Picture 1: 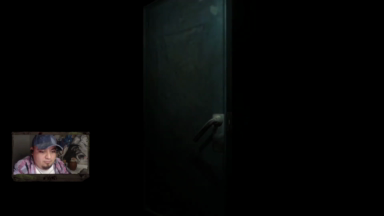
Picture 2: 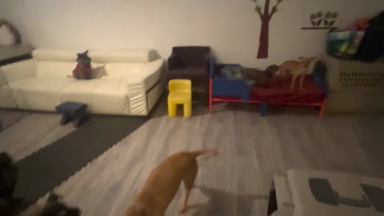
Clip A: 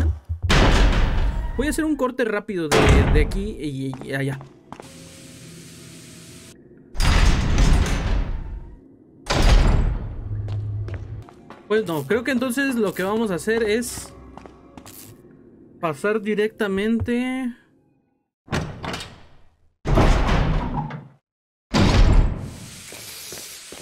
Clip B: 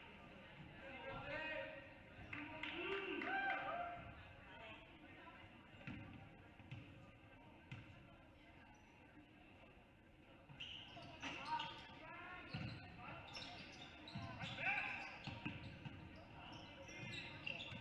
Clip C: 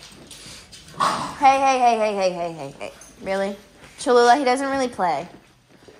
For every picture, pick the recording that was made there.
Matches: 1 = A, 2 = C